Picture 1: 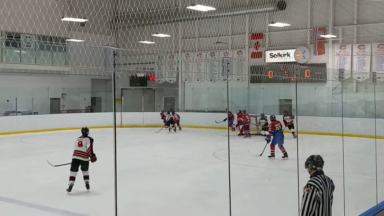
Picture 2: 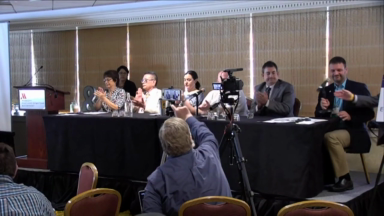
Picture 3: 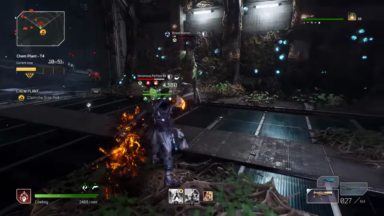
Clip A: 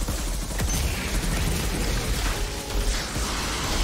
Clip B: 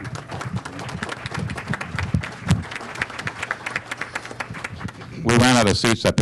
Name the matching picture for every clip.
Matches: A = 3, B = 2